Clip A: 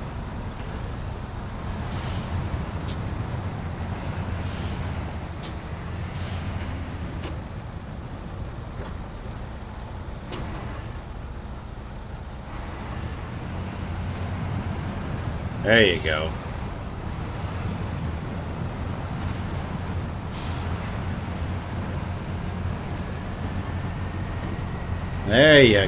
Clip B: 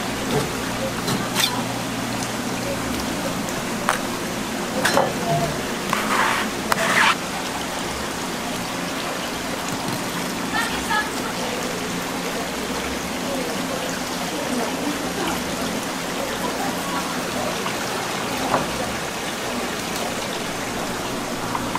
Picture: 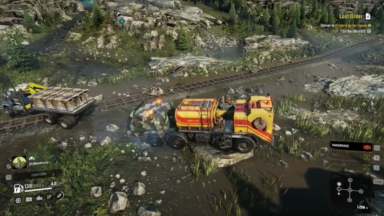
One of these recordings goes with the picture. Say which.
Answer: A